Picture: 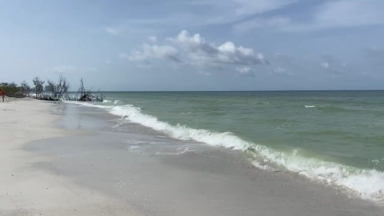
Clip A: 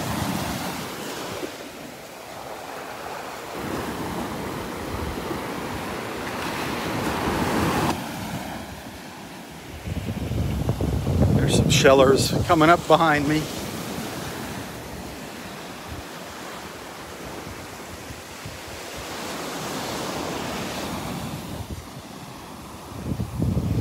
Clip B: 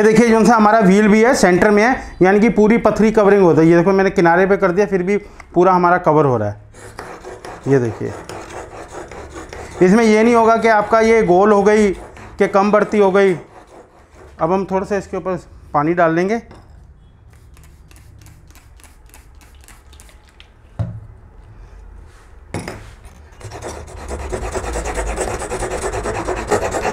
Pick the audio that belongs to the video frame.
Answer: A